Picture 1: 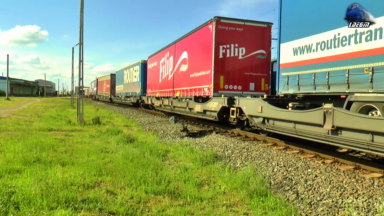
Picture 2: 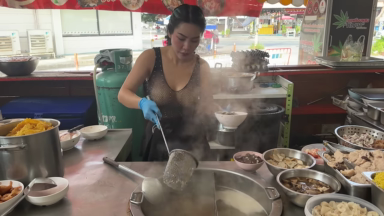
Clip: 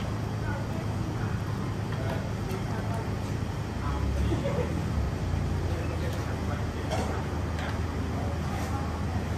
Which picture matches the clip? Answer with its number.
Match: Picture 2